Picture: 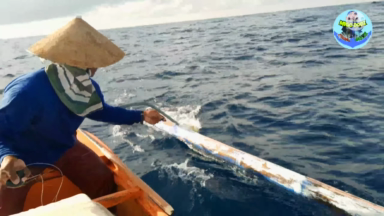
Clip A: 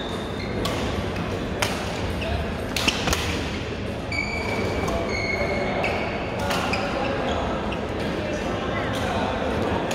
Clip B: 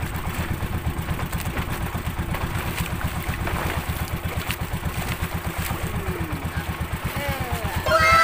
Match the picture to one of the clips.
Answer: B